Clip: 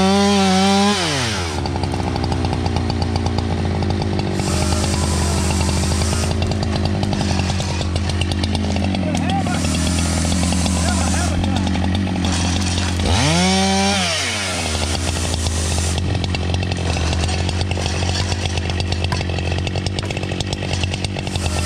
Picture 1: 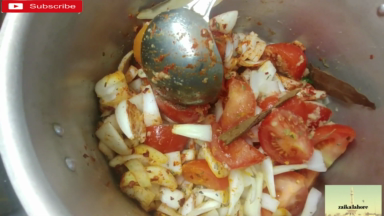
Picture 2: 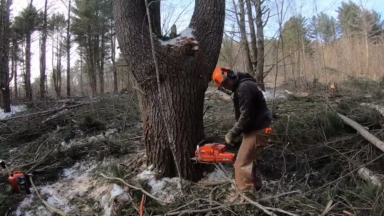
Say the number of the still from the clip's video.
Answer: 2